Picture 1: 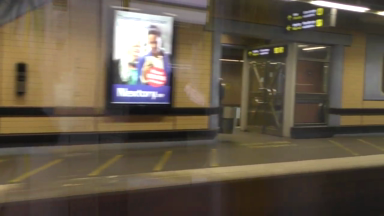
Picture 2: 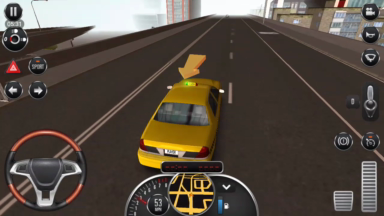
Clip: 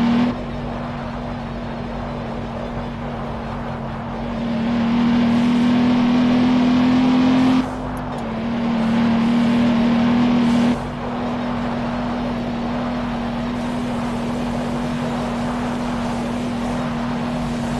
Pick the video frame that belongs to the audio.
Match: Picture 2